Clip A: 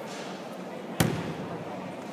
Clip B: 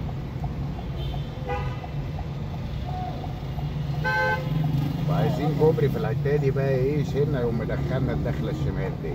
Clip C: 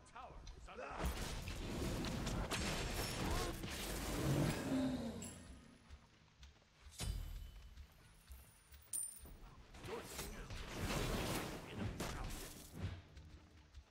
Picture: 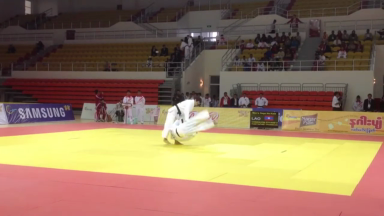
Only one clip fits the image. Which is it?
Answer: A